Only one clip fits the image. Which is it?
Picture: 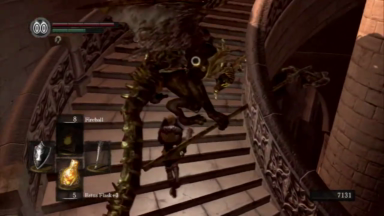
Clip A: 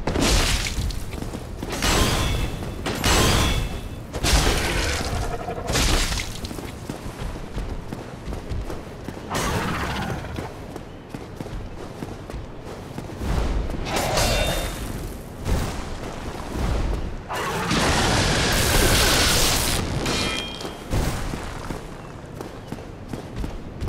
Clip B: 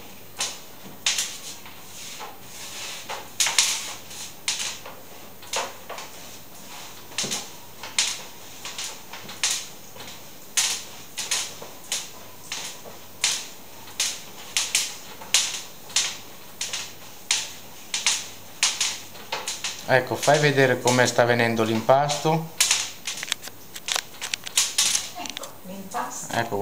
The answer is A